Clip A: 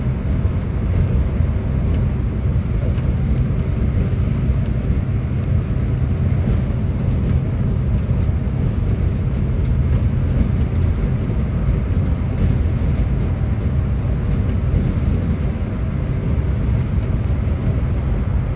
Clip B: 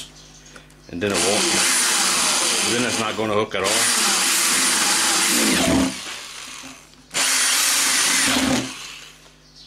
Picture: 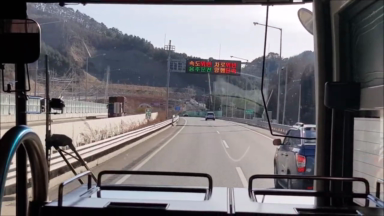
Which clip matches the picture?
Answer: A